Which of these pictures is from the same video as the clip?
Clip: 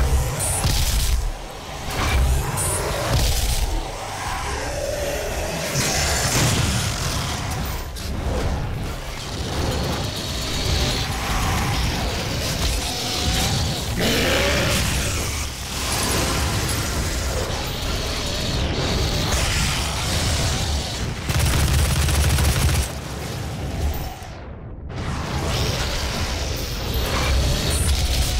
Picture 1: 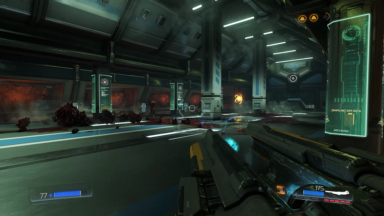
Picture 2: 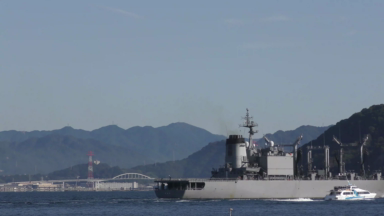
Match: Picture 1